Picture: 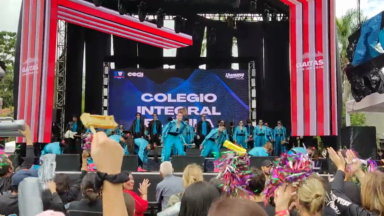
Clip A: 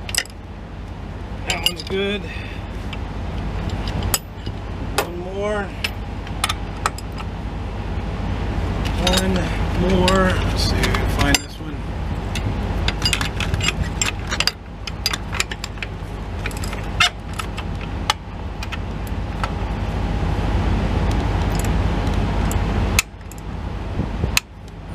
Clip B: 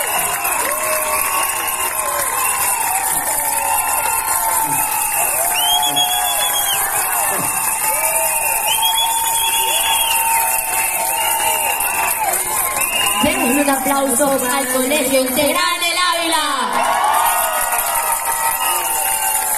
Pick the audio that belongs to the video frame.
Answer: B